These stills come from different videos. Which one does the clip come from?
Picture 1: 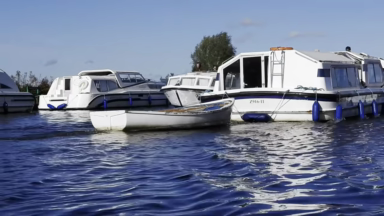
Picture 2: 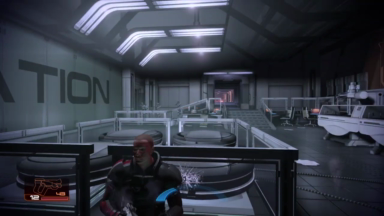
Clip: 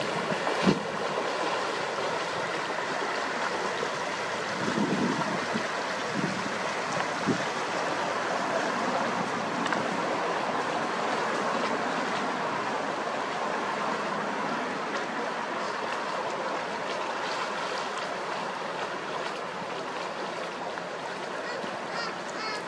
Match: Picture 1